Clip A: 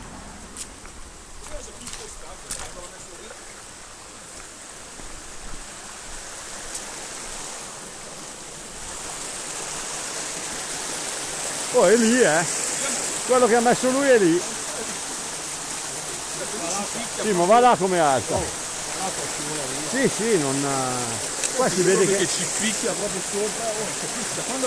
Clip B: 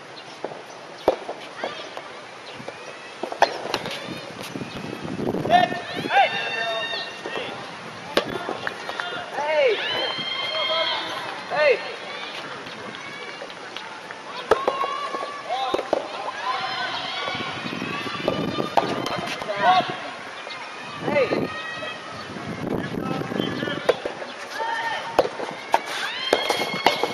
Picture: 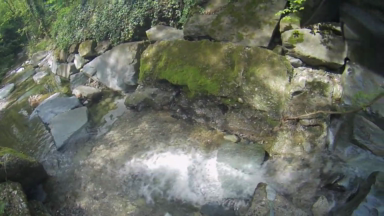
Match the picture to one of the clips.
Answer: A